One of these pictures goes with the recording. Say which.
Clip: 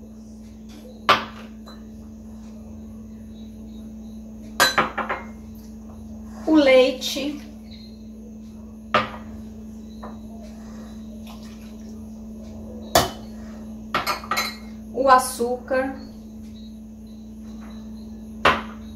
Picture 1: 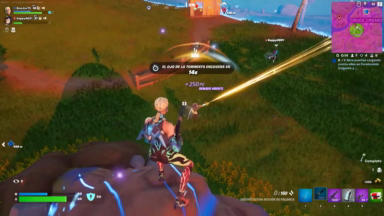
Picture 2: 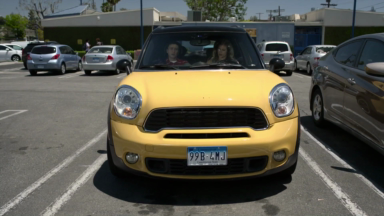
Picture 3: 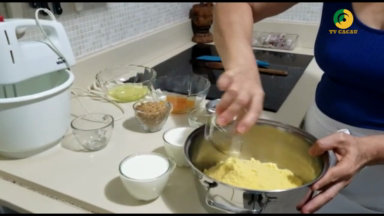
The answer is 3